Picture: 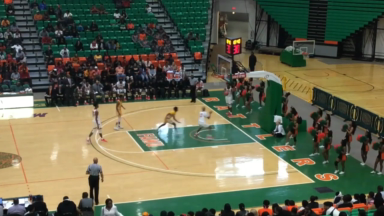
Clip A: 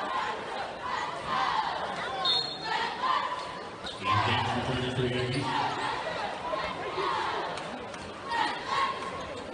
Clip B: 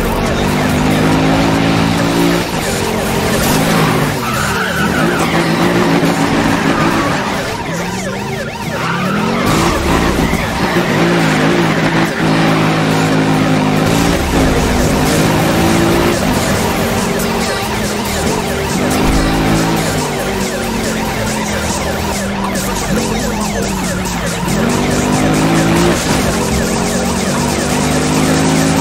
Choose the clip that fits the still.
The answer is A